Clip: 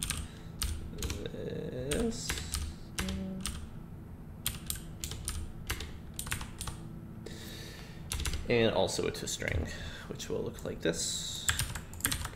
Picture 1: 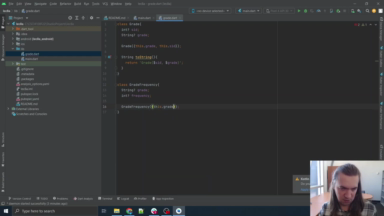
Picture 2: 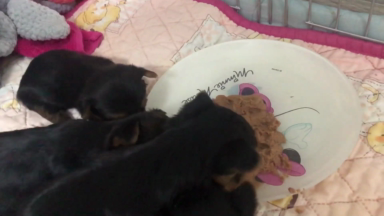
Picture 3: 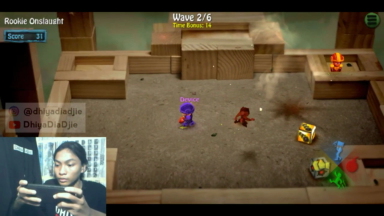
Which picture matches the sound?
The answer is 1